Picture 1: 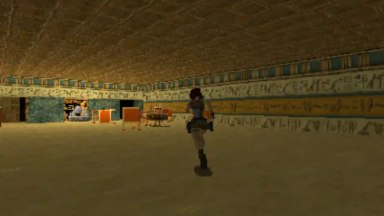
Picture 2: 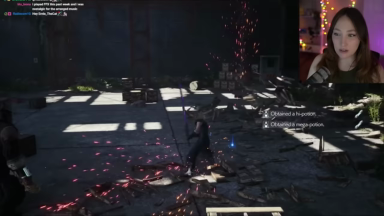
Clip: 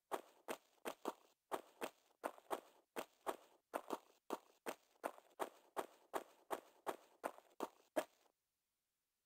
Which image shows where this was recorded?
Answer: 1